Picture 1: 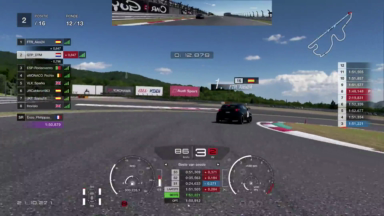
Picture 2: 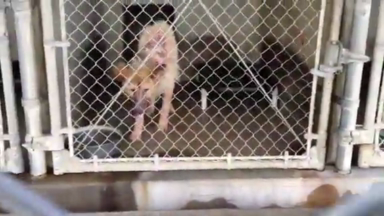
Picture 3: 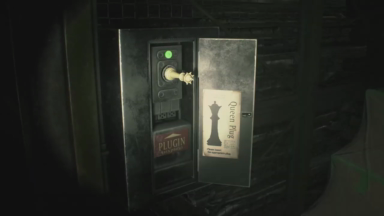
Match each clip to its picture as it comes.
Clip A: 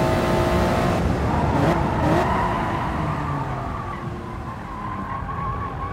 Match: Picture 1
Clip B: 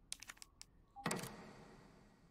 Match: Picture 3